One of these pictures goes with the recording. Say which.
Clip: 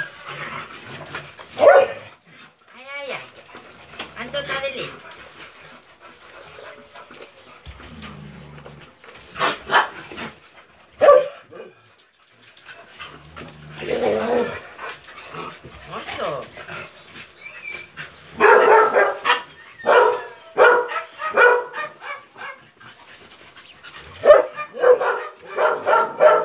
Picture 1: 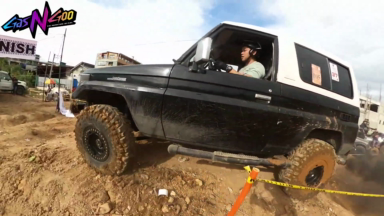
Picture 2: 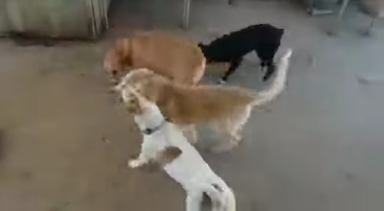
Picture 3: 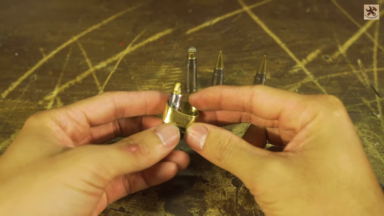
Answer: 2